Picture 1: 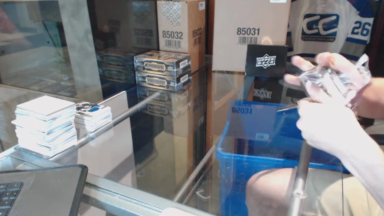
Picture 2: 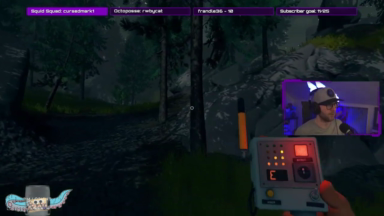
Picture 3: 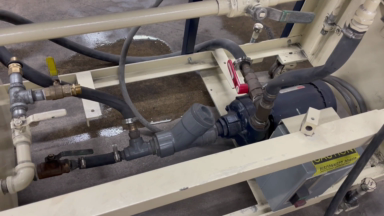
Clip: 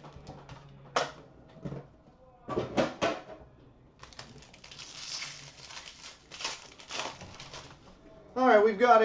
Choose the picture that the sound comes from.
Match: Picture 1